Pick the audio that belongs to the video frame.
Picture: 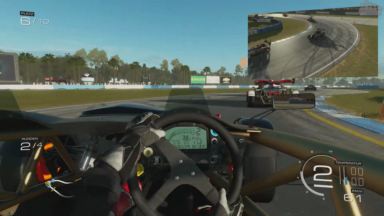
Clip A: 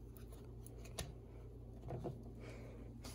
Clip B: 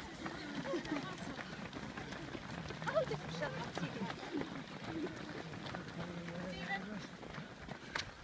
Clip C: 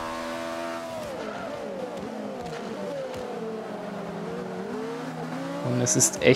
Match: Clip C